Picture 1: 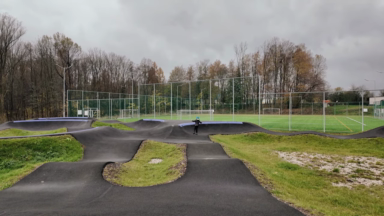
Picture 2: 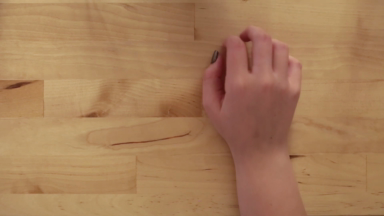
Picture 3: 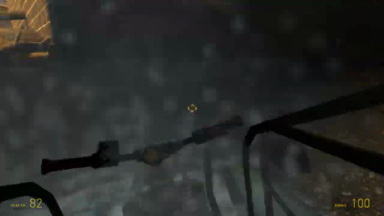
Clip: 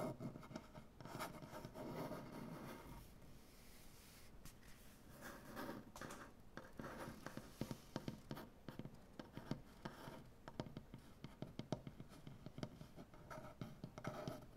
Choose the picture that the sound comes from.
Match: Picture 2